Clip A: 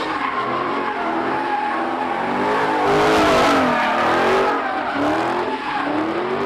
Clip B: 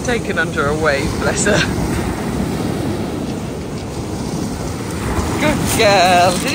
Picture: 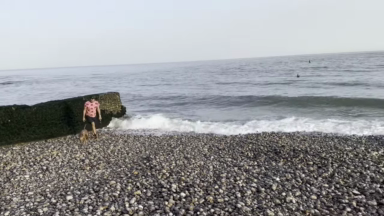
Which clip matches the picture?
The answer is B